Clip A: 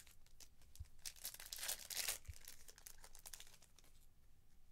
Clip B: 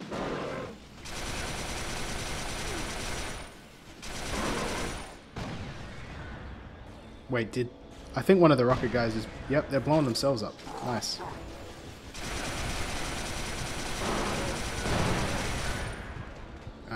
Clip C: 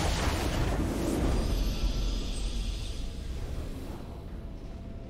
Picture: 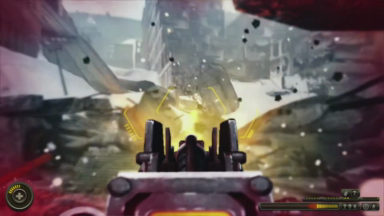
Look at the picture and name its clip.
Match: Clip B